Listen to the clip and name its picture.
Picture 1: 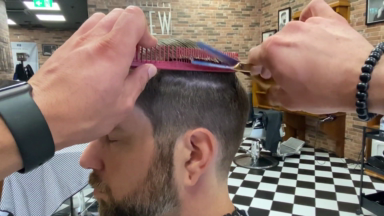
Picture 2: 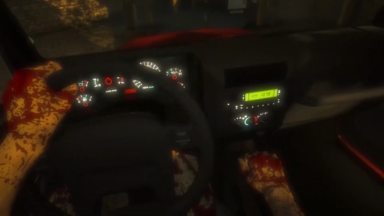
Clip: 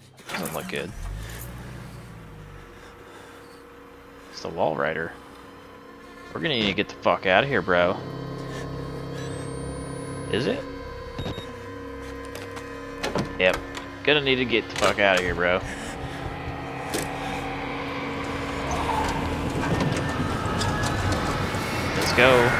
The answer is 2